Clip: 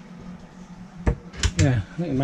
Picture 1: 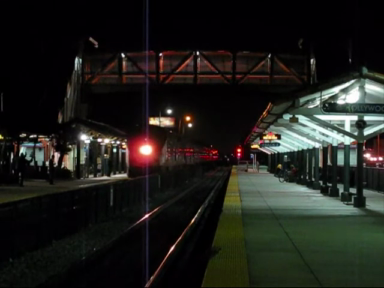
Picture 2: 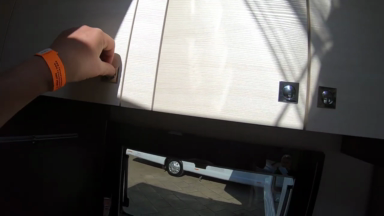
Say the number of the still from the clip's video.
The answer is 2